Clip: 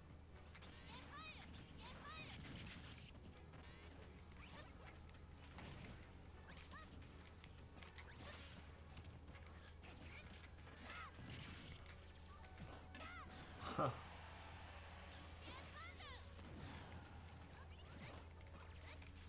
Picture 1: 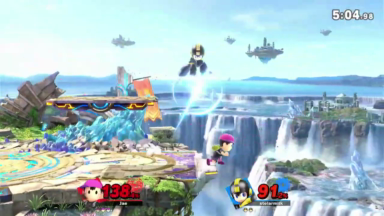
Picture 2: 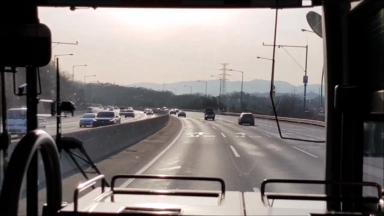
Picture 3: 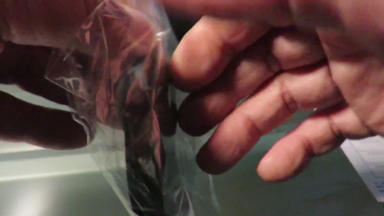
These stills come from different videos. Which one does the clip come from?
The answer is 1